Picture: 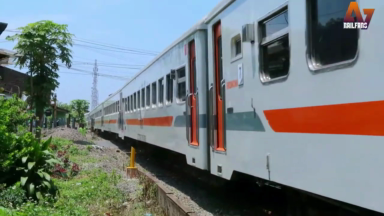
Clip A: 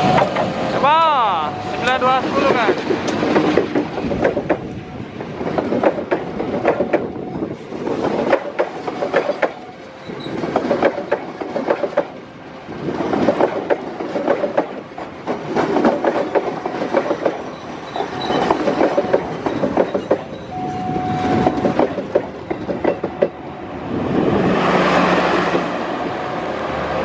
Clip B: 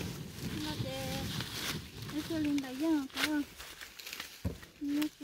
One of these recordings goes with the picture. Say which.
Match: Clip A